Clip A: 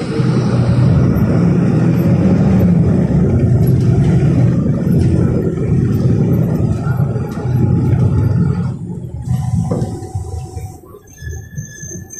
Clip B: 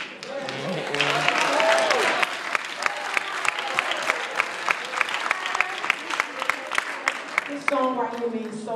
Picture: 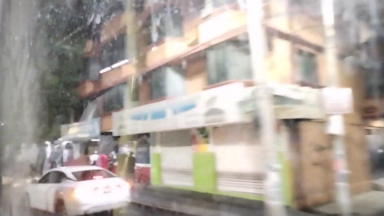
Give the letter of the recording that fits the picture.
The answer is A